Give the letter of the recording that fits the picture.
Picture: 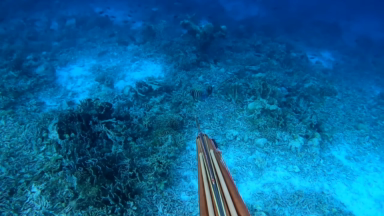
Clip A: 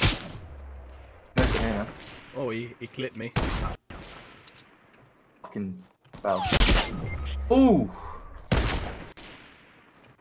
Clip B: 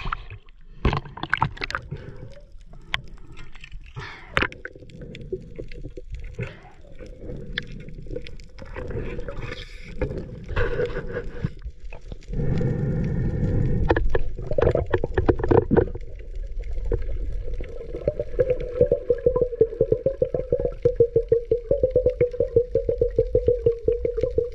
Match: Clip B